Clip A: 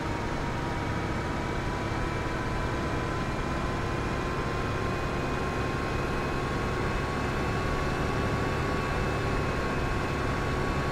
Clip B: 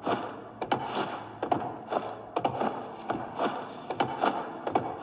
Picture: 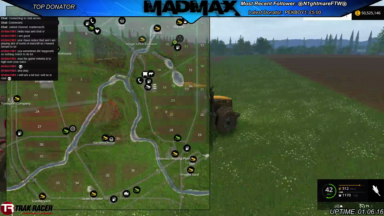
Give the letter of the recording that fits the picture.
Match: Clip A